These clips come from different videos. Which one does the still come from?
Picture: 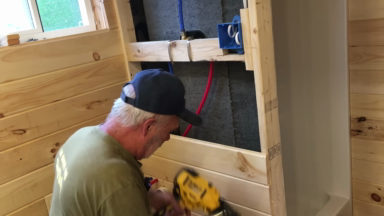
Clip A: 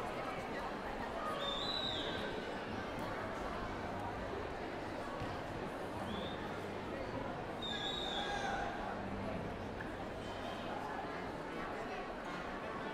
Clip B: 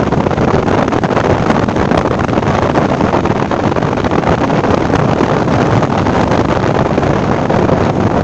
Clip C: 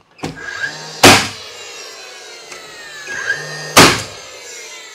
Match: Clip C